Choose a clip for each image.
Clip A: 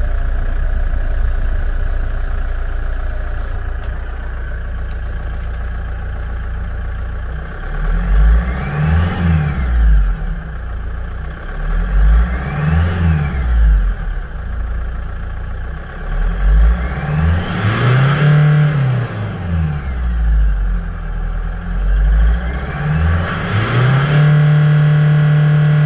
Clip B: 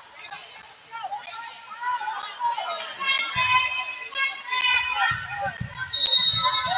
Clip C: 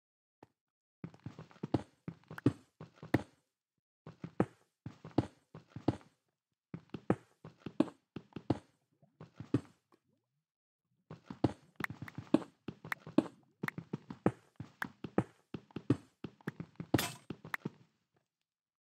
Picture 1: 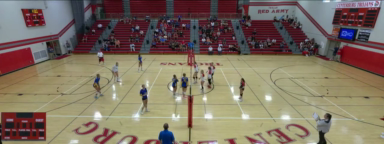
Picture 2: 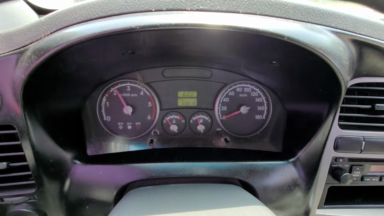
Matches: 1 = B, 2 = A